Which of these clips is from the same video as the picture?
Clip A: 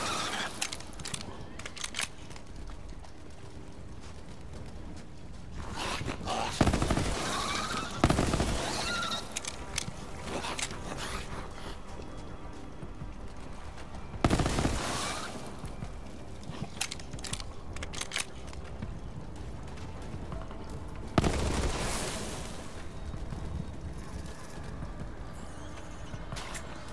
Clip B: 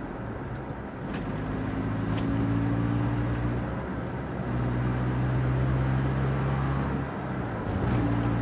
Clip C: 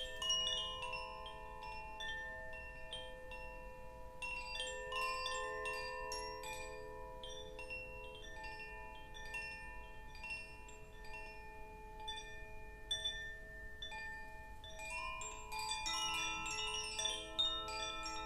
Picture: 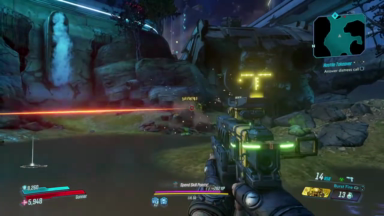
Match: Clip A